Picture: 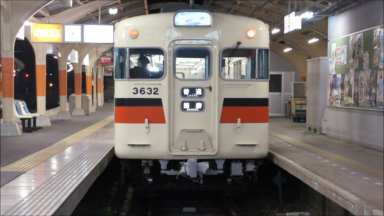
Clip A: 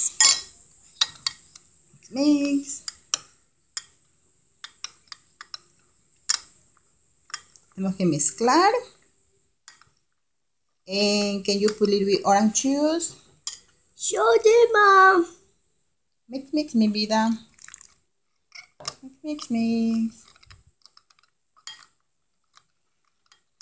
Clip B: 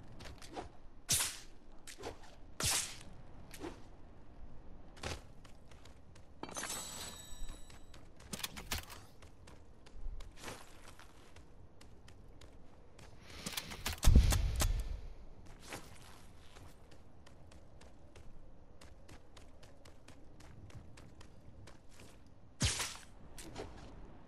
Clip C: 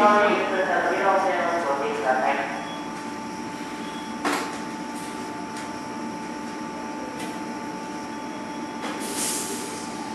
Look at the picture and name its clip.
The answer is C